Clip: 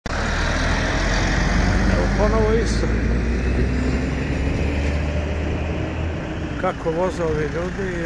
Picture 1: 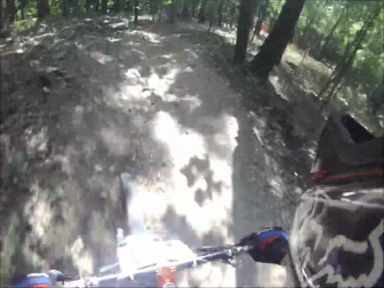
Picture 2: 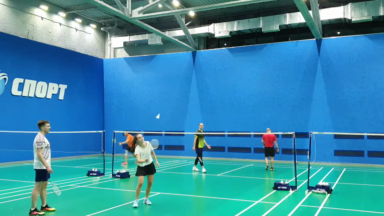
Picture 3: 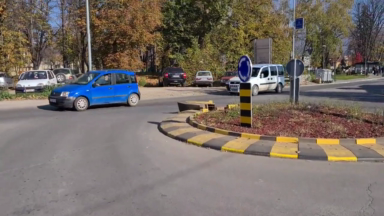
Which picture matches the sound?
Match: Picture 3